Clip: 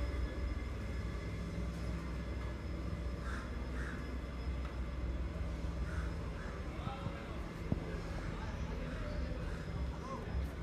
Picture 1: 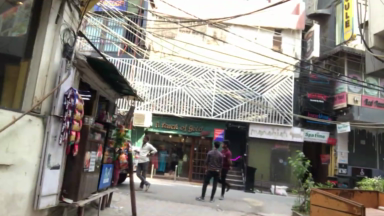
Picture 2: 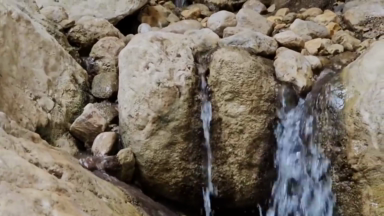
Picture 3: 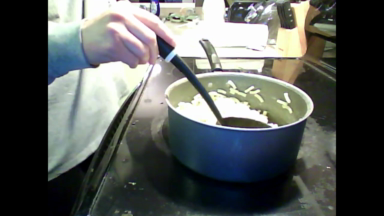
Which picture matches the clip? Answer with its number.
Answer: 1